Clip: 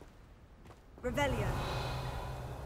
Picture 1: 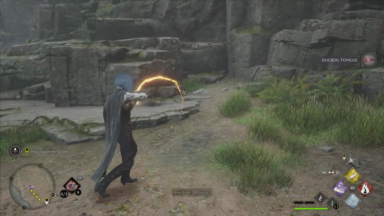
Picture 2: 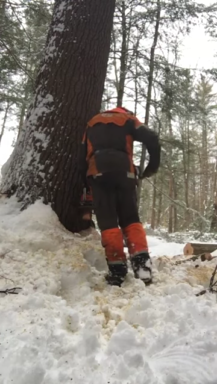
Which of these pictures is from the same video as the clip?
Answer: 1